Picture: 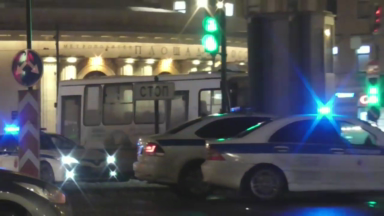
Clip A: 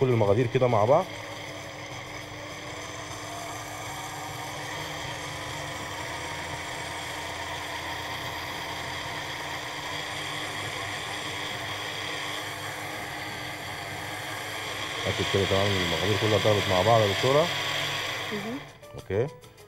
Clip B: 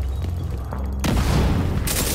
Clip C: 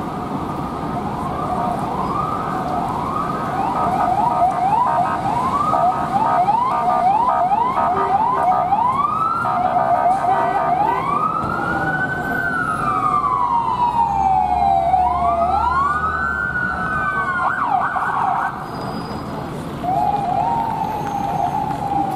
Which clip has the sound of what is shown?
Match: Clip C